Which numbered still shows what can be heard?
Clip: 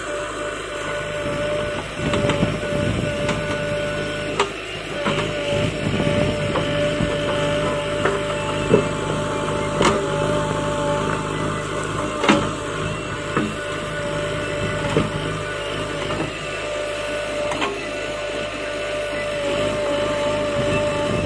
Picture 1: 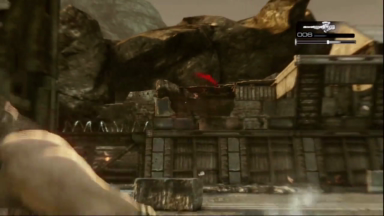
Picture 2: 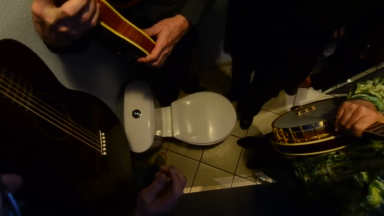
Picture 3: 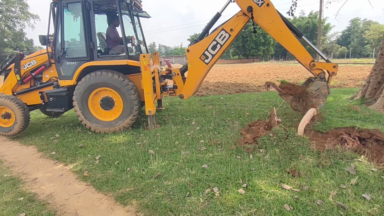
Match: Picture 3